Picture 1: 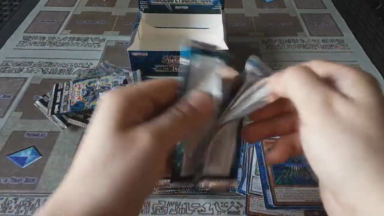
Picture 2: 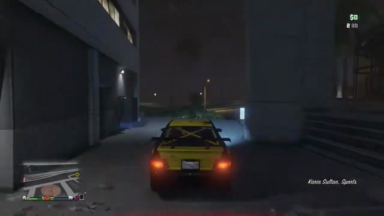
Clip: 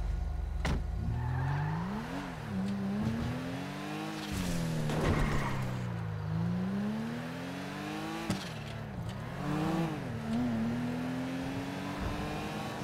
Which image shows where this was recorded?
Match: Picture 2